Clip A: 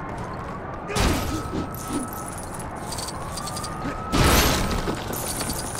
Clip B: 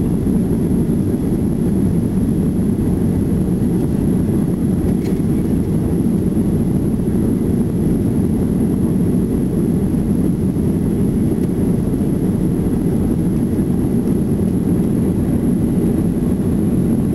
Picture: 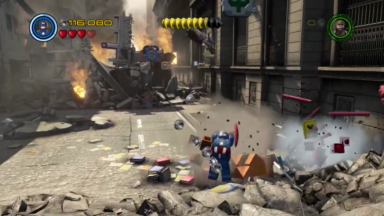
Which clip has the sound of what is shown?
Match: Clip A